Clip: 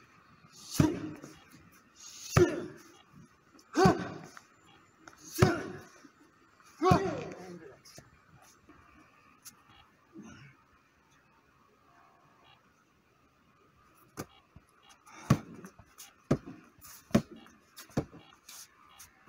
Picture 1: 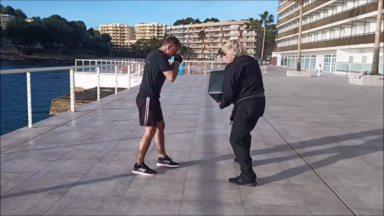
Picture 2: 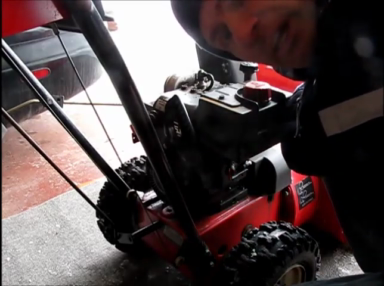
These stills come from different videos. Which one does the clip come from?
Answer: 1